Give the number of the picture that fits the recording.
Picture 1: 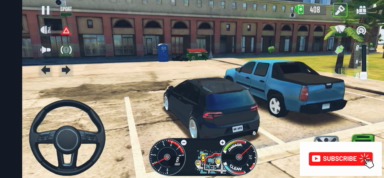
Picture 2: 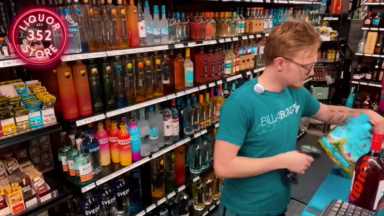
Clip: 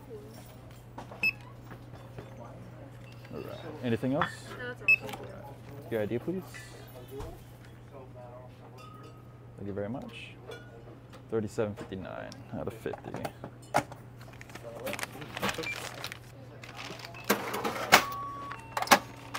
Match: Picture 2